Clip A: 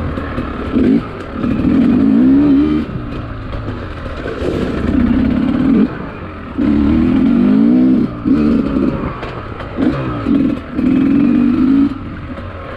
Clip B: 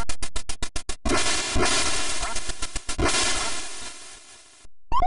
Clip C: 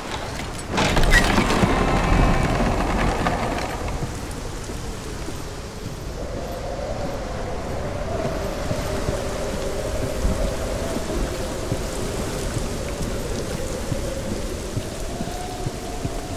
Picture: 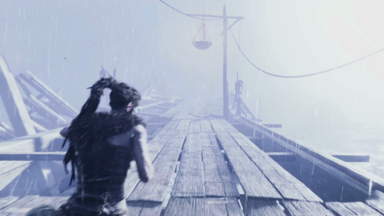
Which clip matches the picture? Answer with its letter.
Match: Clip C